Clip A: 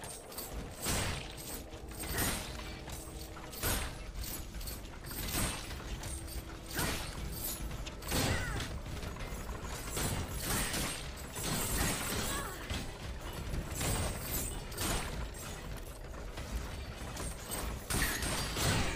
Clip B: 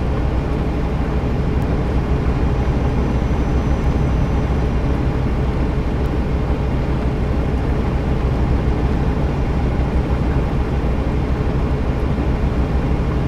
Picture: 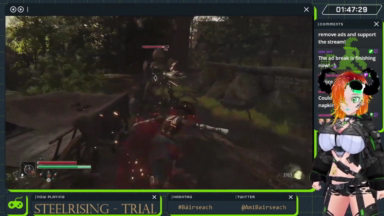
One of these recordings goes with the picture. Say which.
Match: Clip A